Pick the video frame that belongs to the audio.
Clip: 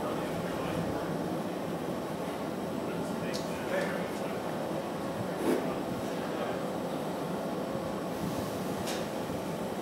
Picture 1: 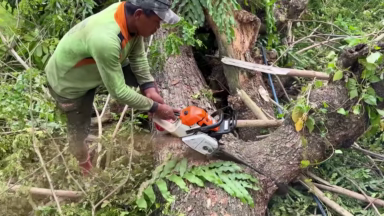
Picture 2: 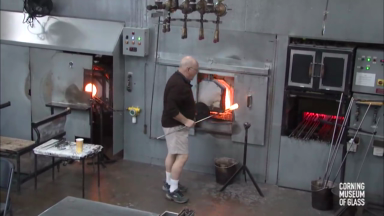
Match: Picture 2